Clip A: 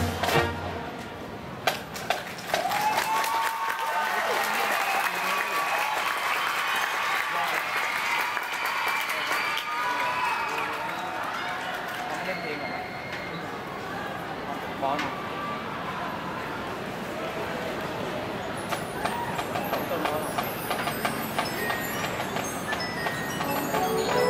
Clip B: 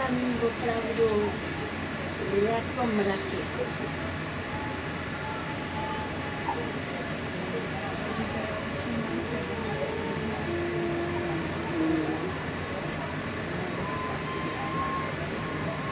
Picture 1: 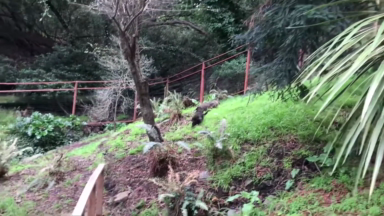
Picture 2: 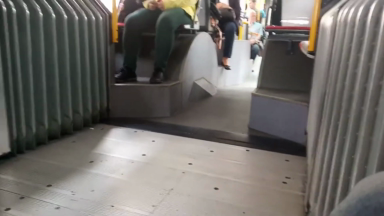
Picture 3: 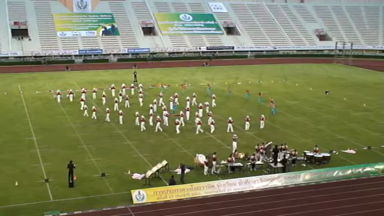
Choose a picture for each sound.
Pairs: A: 3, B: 2